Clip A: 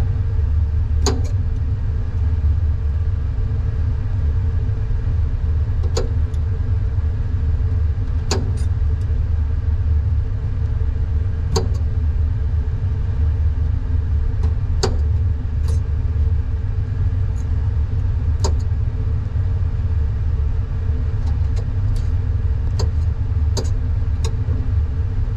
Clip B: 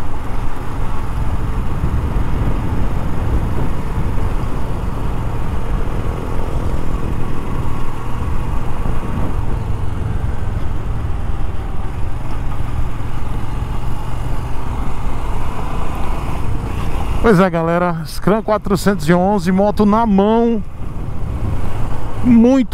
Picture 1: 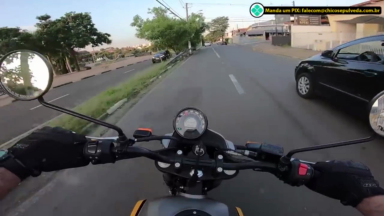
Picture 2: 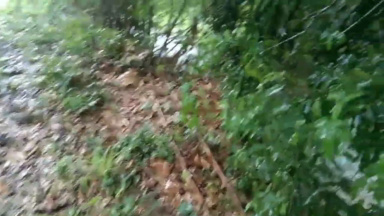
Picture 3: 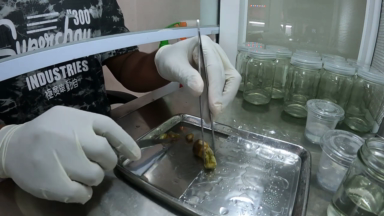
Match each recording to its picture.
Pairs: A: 3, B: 1